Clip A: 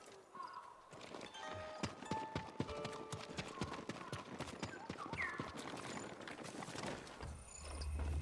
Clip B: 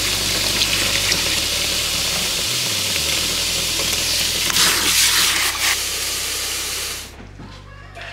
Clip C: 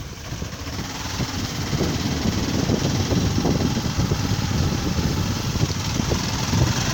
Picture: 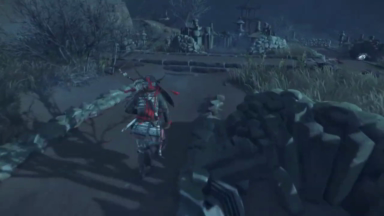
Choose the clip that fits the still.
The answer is A